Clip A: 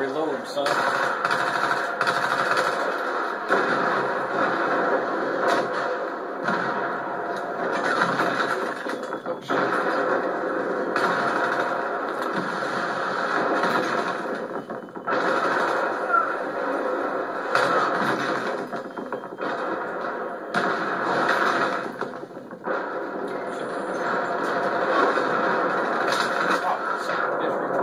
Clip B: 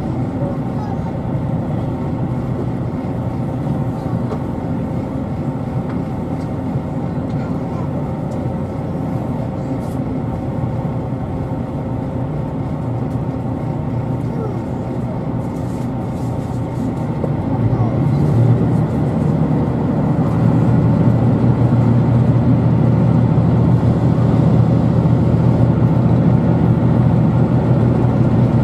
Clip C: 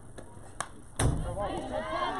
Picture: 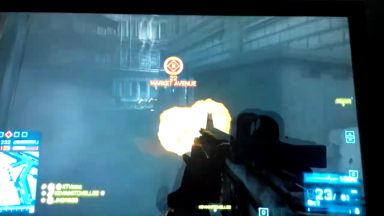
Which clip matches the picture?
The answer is A